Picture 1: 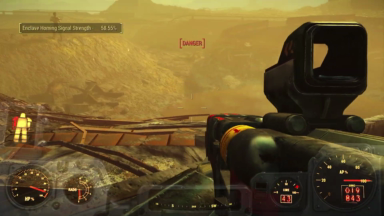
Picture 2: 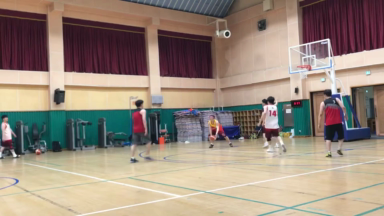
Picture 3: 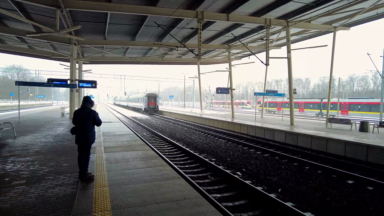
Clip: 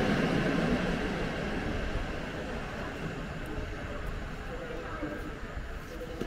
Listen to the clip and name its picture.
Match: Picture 3